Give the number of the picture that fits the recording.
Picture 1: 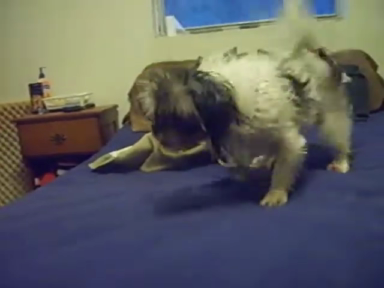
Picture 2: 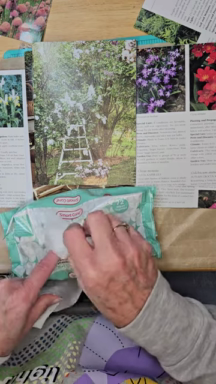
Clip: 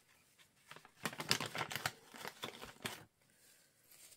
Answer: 2